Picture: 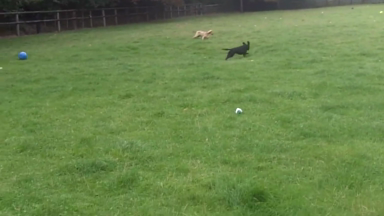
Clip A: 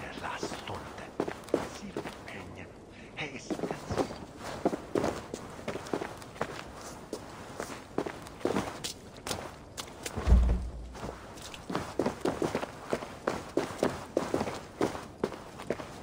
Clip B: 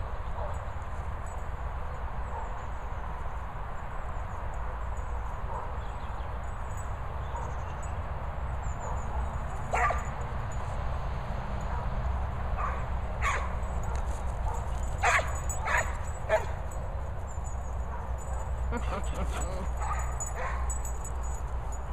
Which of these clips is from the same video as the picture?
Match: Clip B